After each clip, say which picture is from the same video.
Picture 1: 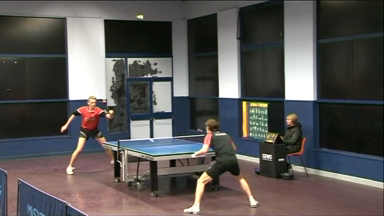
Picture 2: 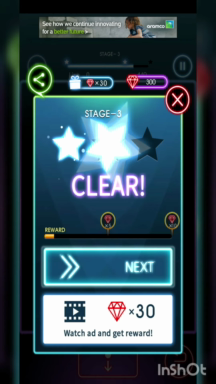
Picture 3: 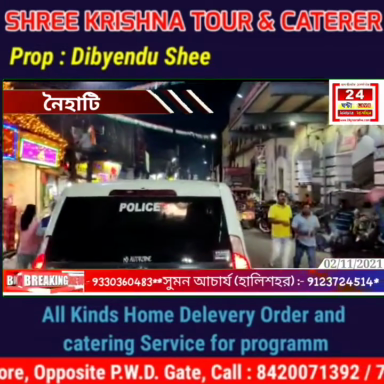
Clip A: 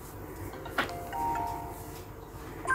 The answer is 2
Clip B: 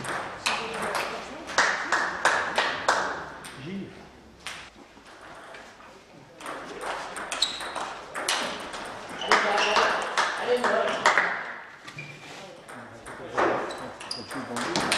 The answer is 1